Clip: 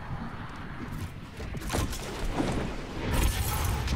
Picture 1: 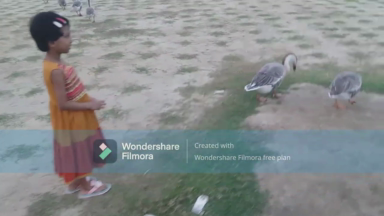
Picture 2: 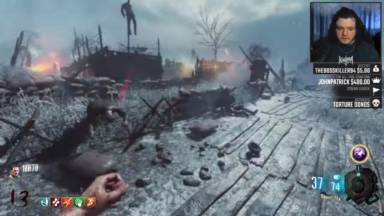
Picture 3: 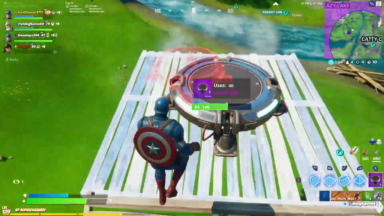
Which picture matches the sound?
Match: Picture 3